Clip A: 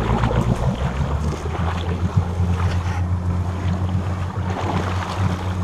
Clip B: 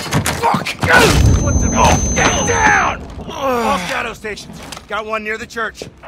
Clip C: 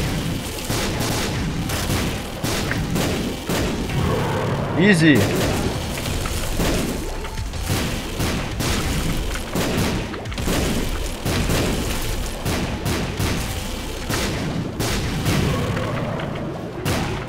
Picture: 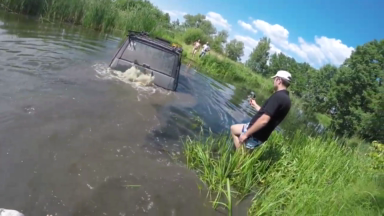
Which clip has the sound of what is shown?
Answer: A